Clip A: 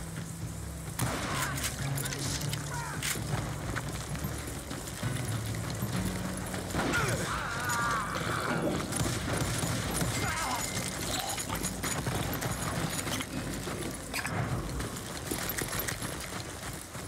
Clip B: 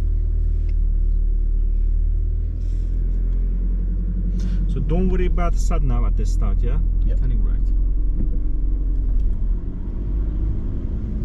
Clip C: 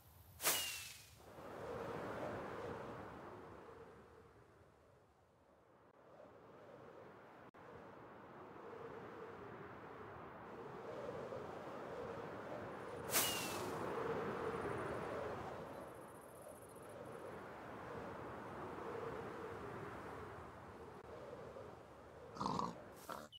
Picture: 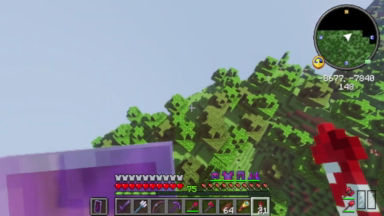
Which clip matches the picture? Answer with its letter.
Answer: C